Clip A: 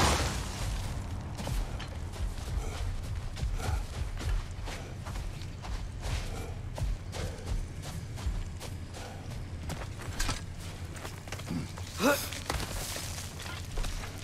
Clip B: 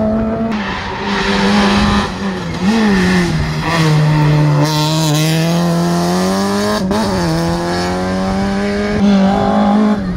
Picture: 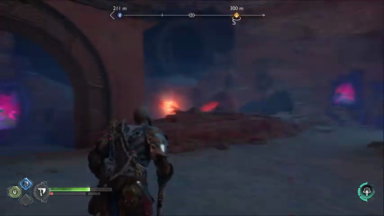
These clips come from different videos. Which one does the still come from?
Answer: A